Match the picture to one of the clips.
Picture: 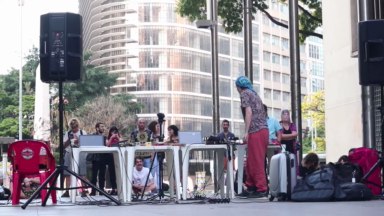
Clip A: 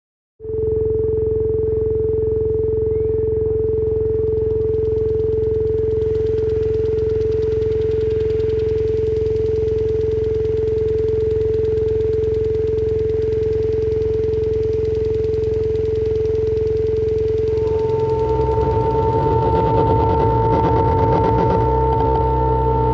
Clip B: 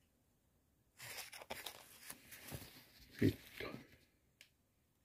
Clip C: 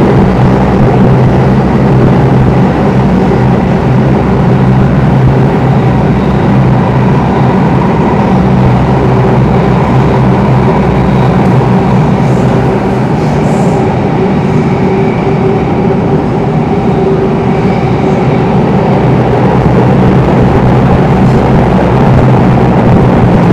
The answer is A